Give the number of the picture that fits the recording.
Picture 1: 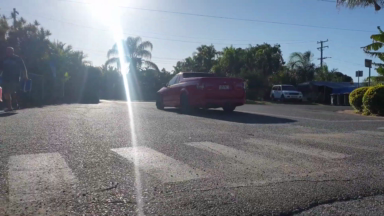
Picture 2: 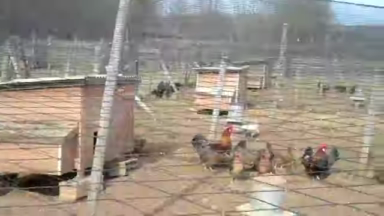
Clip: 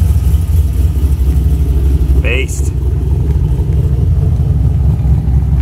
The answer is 1